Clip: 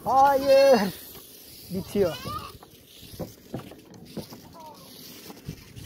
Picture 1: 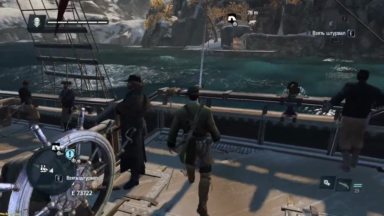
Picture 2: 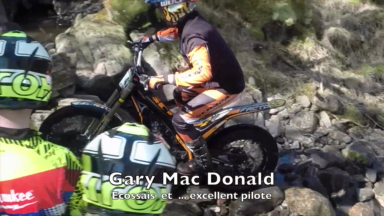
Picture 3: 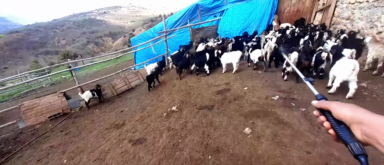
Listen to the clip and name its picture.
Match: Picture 3